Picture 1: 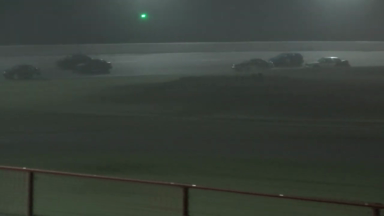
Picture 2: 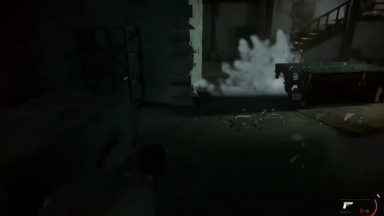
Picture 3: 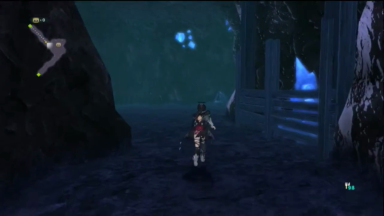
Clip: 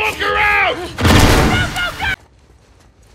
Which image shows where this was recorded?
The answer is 2